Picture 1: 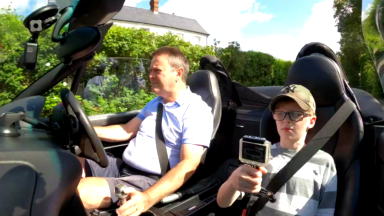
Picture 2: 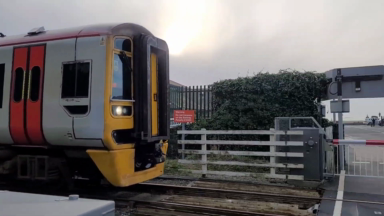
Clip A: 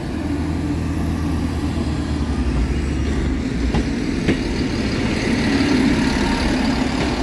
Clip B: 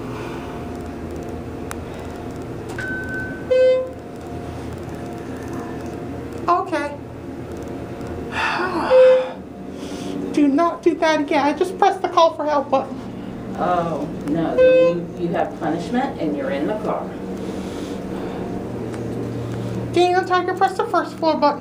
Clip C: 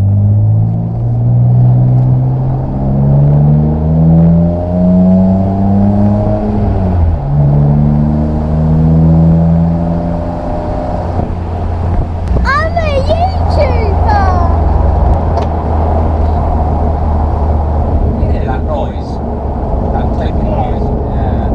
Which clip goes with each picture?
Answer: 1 C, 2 A